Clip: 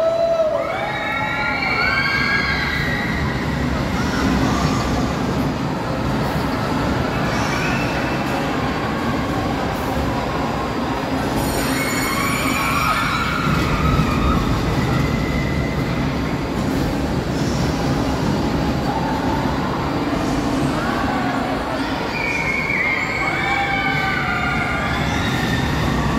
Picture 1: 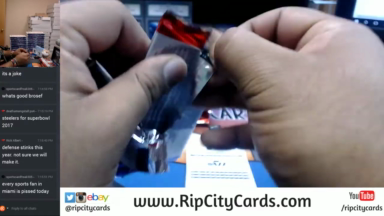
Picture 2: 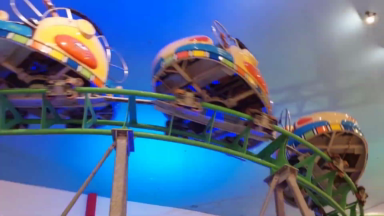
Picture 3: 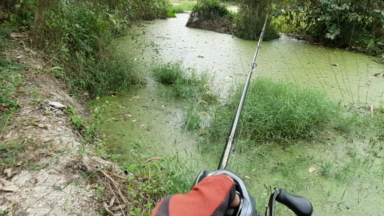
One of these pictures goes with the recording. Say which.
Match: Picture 2